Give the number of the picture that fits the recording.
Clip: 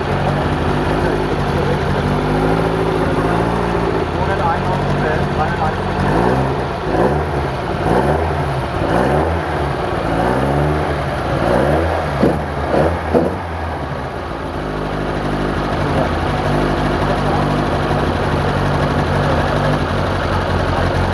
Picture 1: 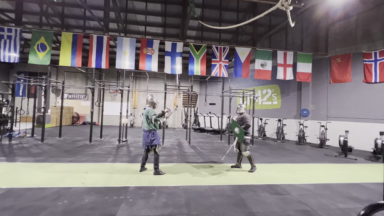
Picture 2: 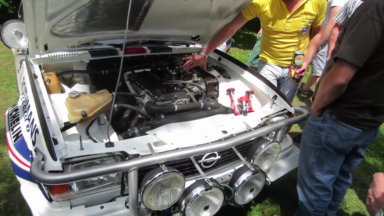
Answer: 2